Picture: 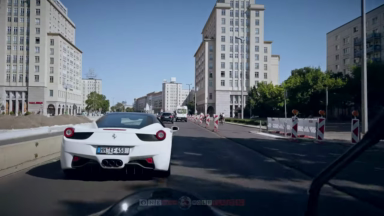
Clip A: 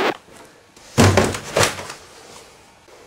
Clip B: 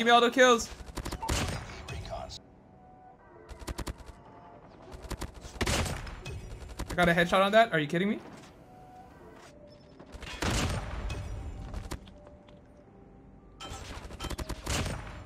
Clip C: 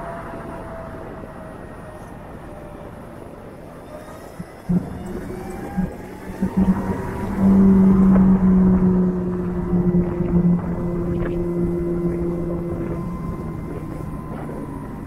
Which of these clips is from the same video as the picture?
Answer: C